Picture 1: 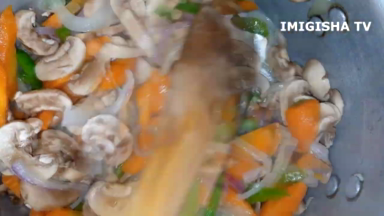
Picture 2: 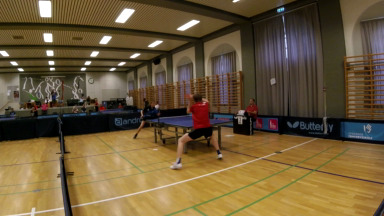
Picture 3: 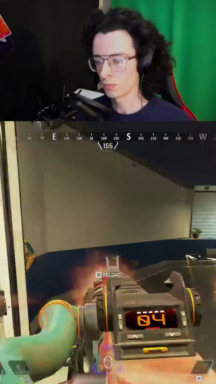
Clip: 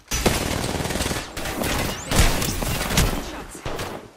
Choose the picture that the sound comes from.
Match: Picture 3